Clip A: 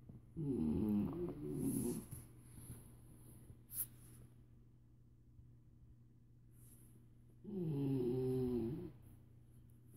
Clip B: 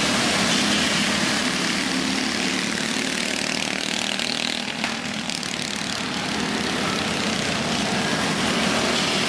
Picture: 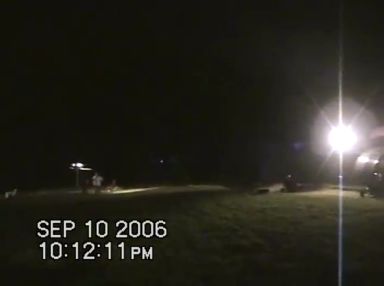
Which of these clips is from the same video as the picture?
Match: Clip B